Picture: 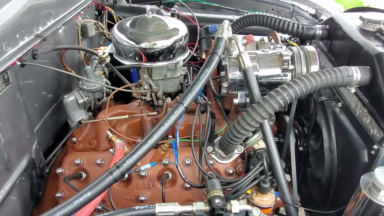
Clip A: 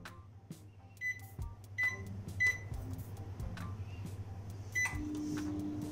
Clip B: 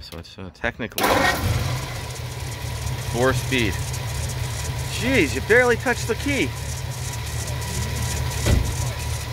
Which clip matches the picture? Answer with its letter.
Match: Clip B